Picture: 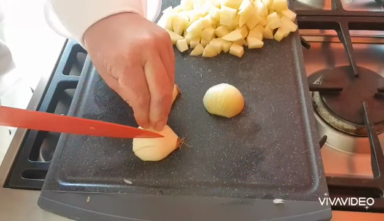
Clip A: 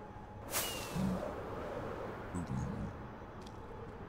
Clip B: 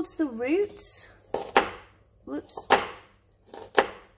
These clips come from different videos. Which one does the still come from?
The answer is B